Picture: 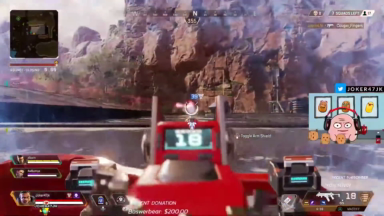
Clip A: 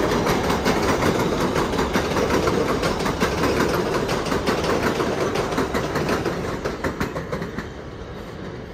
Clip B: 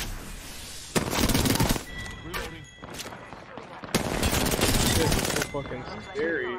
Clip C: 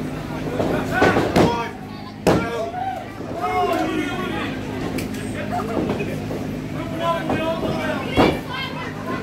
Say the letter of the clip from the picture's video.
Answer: B